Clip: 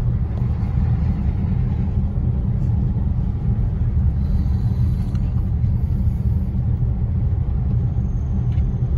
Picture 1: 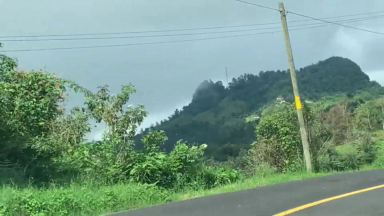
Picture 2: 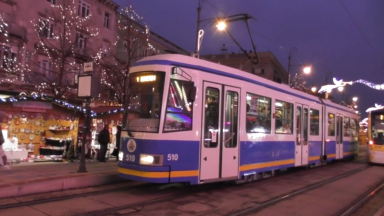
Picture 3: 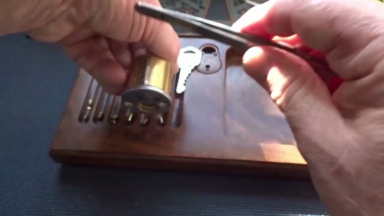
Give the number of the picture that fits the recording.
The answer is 1